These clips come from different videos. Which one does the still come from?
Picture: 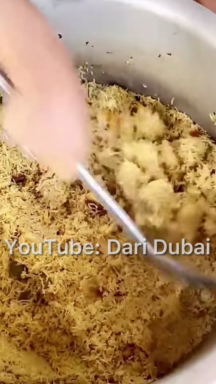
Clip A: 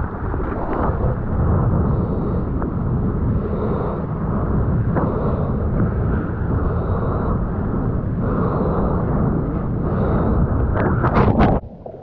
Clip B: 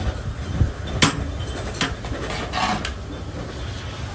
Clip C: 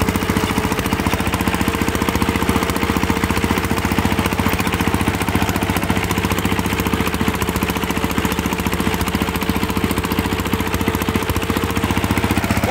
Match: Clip B